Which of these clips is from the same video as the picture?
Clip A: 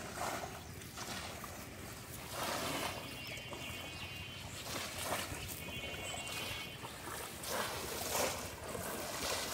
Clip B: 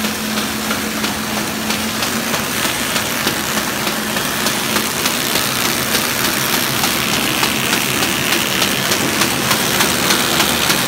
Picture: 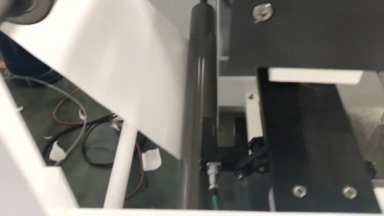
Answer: B